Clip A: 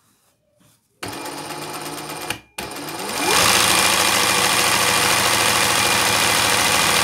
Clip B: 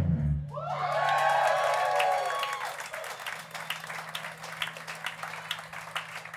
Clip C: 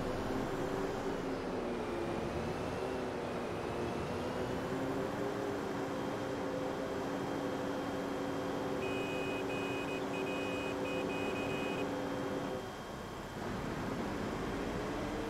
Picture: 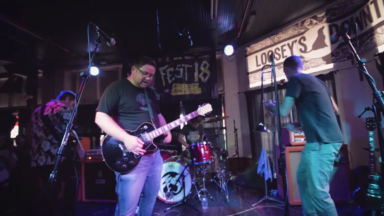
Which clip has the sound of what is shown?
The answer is B